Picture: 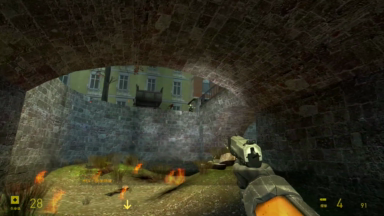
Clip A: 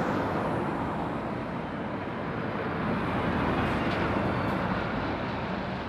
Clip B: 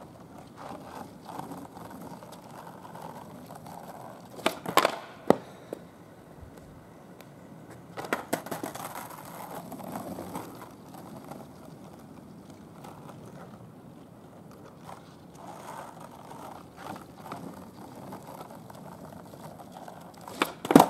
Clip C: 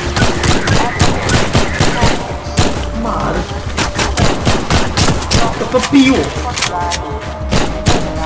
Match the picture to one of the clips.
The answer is C